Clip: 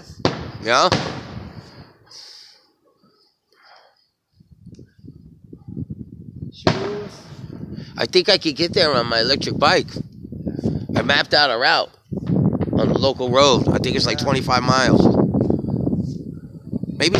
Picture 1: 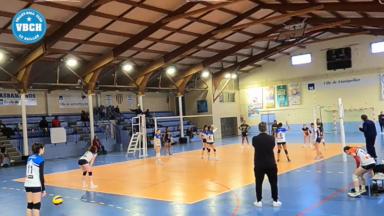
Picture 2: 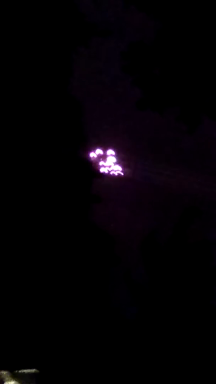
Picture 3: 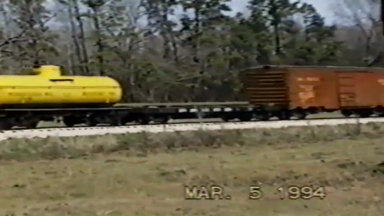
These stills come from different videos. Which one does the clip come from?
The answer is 2